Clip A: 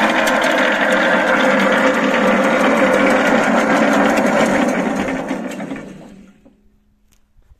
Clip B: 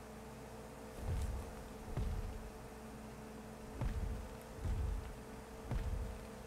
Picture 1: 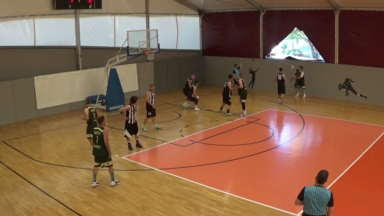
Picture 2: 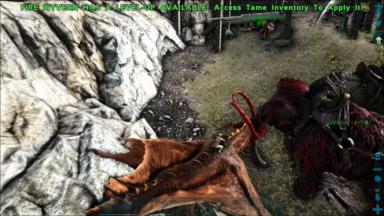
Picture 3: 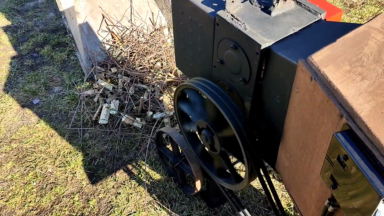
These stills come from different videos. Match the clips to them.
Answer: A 3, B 2